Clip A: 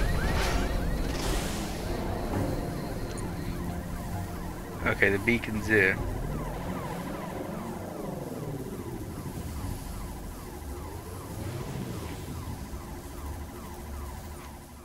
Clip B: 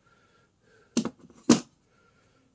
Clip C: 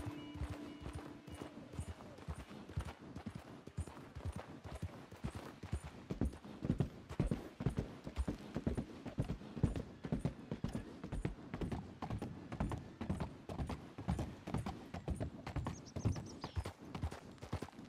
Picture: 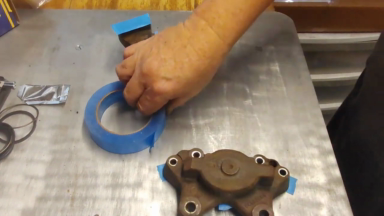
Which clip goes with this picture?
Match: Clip B